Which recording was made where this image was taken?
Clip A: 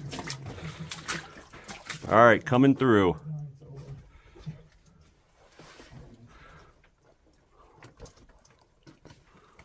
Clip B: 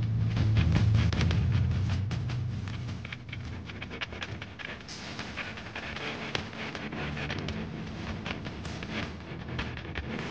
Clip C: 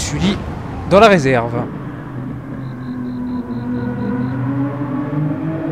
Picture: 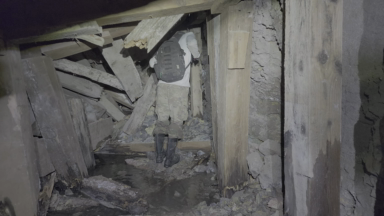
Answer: A